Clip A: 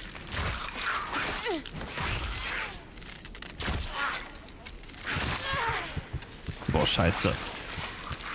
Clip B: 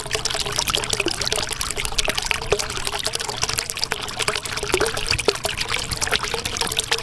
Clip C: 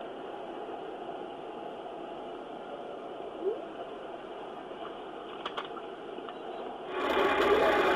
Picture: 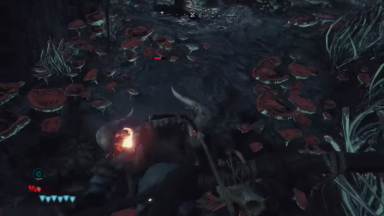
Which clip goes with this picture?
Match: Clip A